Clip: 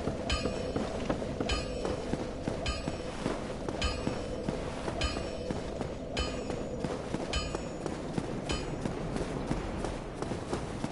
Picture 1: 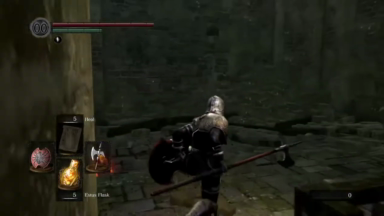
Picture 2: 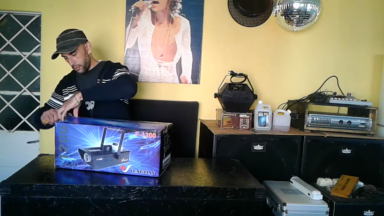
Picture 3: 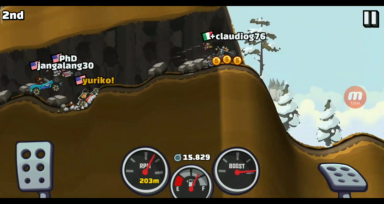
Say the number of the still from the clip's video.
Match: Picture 1